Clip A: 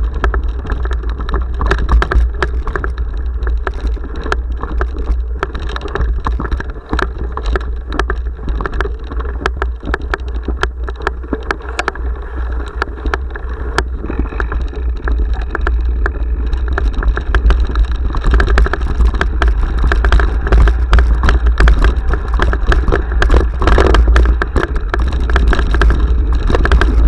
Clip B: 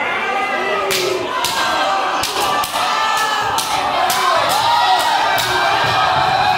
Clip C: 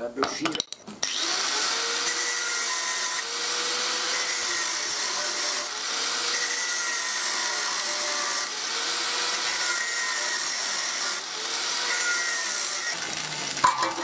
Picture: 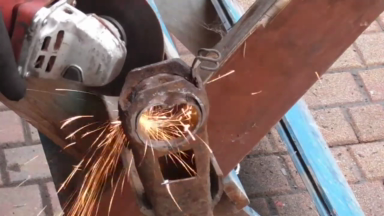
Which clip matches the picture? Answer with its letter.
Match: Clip C